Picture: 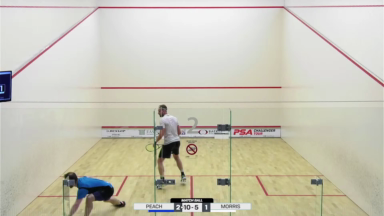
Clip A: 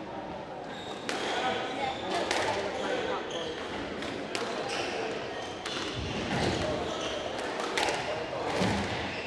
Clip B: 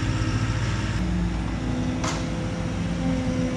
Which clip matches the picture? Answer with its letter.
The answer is A